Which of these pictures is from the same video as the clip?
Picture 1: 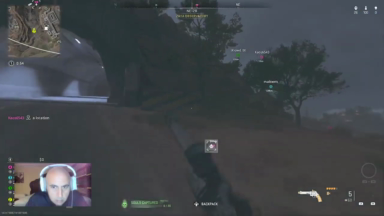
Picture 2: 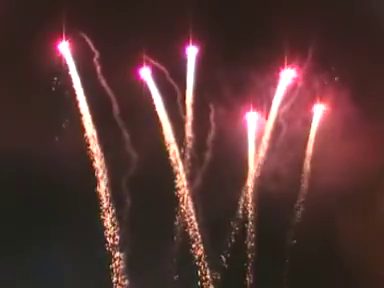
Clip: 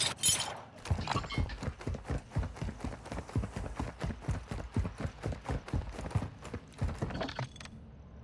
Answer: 1